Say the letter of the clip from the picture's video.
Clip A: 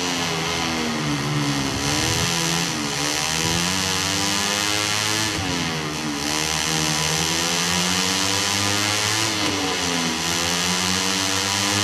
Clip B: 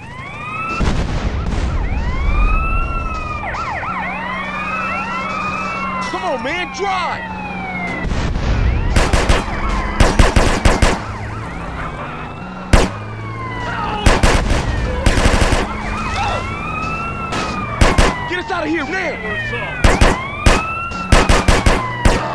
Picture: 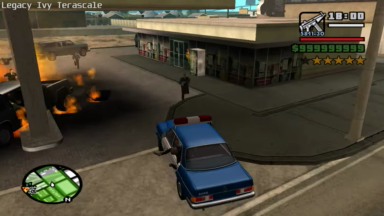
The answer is B